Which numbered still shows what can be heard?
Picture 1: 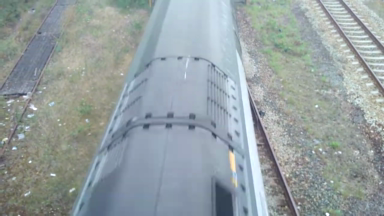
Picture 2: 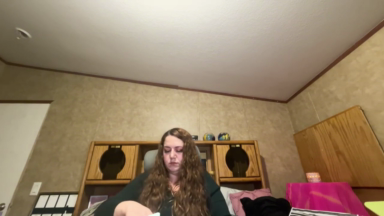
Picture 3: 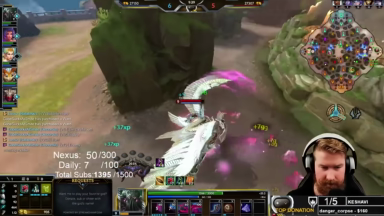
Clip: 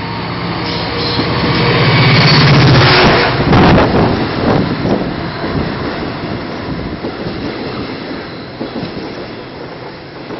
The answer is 1